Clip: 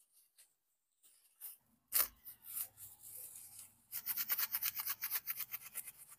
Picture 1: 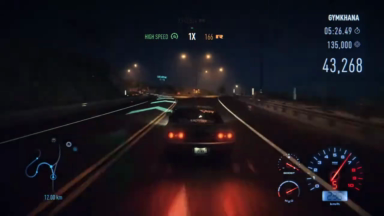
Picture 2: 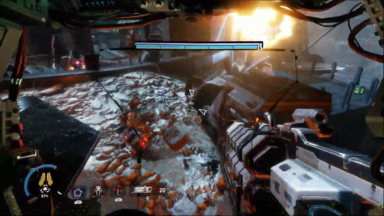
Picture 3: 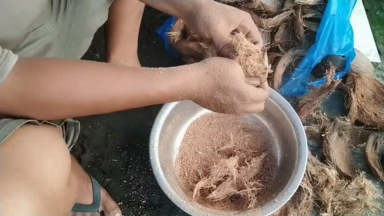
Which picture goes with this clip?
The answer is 3